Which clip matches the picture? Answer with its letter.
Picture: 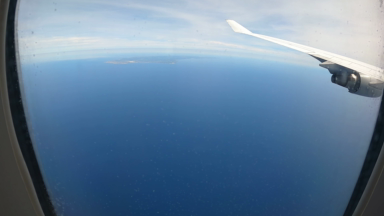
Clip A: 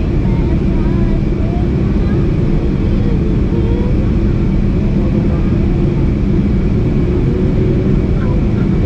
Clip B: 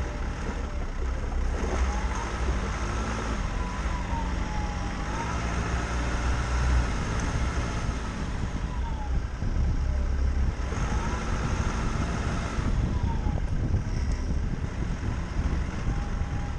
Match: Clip A